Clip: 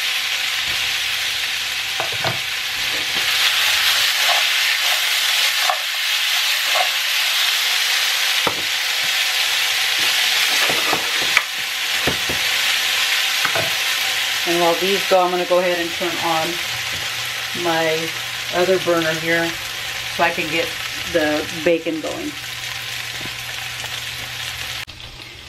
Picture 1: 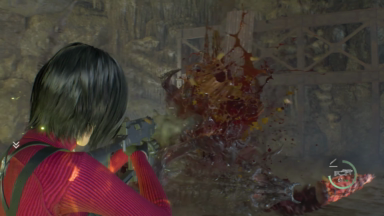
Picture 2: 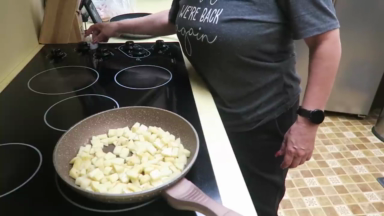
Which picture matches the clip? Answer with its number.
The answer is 2